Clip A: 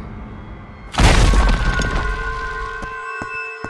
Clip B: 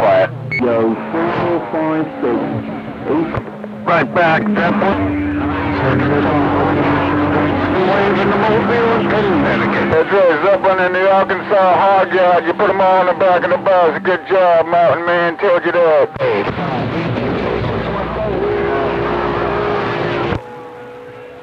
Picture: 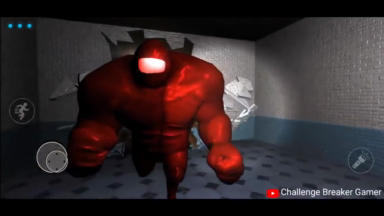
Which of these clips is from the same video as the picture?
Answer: A